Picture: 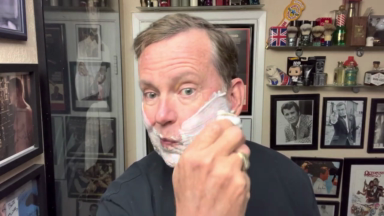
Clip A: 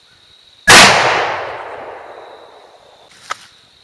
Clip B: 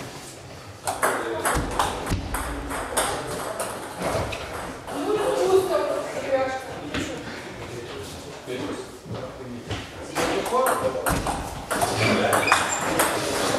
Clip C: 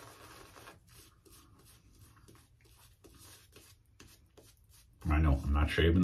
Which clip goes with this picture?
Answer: C